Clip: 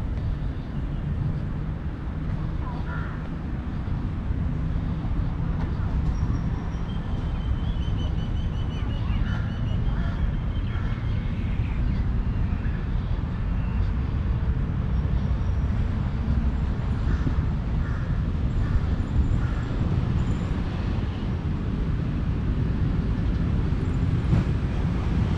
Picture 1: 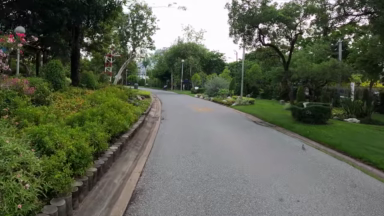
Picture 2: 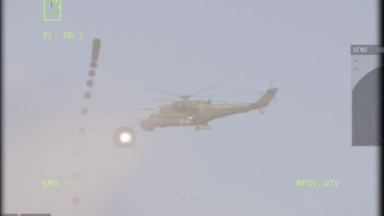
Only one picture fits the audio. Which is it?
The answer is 1